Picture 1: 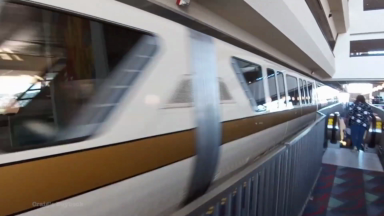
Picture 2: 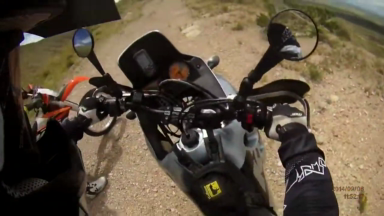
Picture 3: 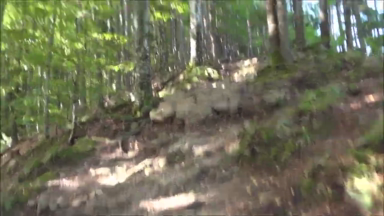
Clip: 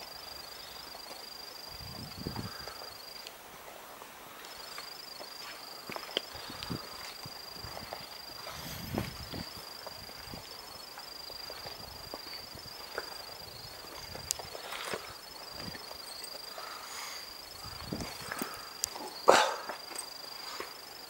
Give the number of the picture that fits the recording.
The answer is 3